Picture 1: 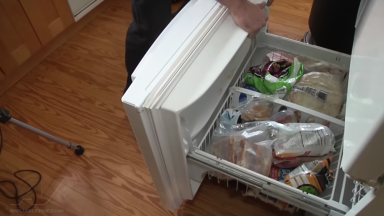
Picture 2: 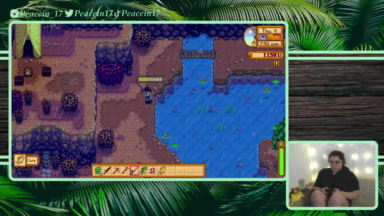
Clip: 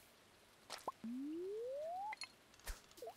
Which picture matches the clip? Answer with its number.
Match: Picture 2